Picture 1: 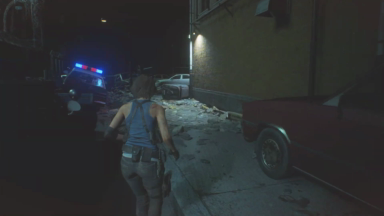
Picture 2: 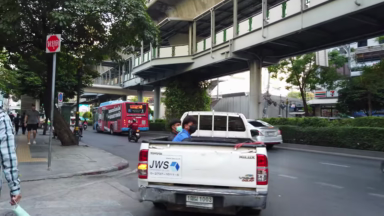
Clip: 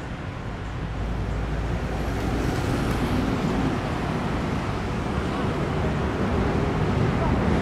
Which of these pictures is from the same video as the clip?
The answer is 2